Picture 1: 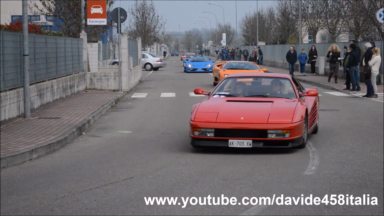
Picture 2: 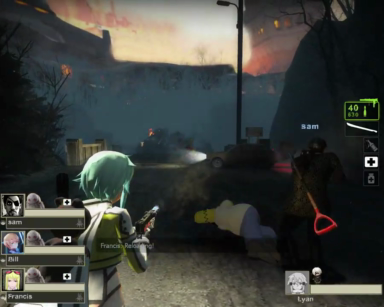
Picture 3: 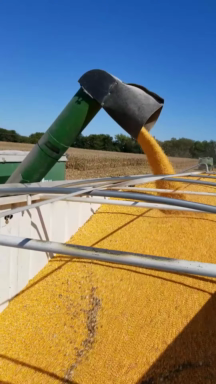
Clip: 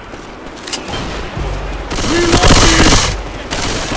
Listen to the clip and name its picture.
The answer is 2